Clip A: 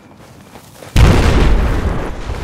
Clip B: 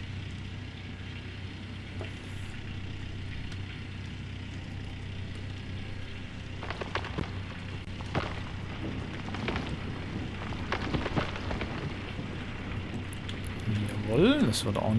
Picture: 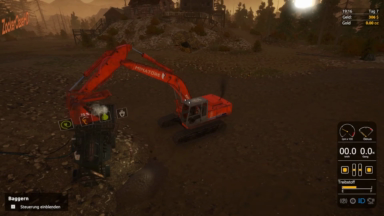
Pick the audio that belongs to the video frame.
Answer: B